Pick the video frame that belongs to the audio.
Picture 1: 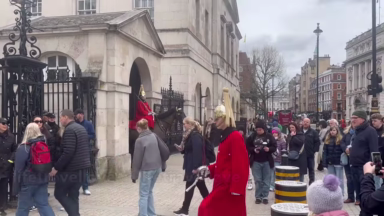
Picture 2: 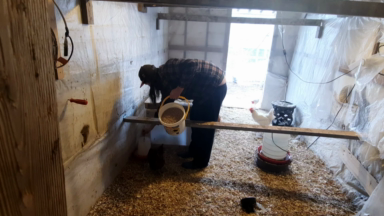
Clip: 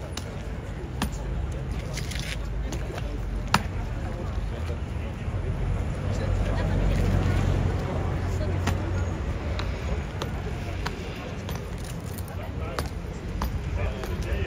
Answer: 1